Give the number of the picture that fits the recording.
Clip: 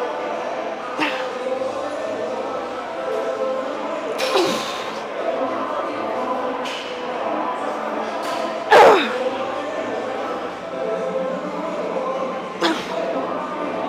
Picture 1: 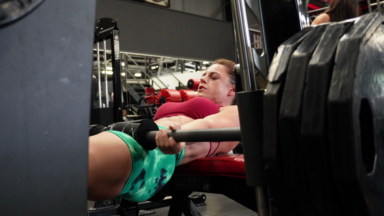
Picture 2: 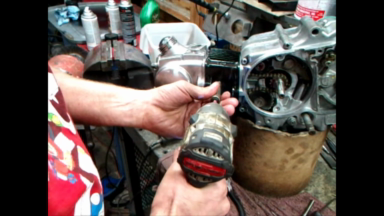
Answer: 1